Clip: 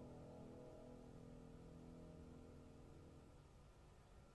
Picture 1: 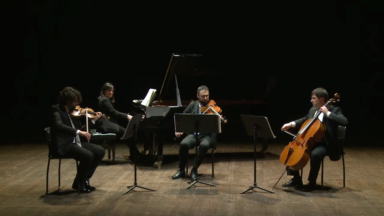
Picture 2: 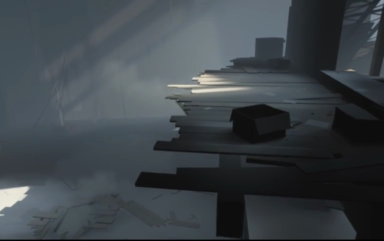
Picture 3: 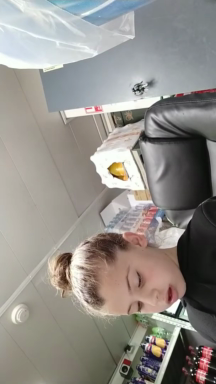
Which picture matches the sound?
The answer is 1